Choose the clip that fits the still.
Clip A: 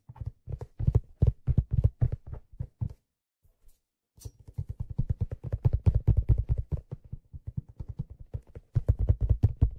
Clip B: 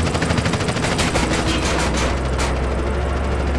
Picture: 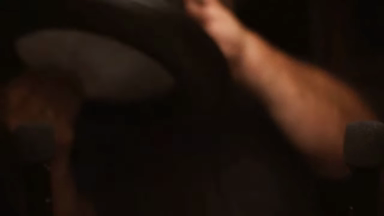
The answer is A